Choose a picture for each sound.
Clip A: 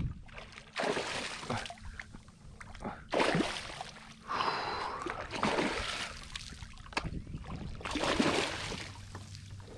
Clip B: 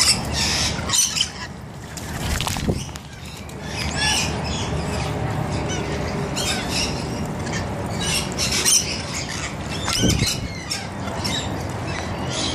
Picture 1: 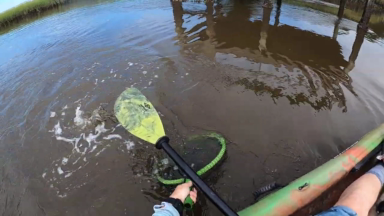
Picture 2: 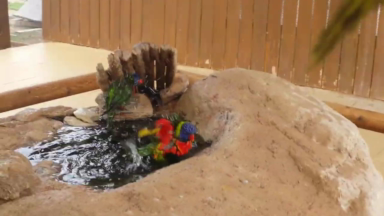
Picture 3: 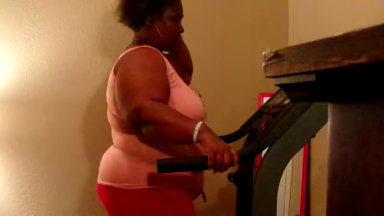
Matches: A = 1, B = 2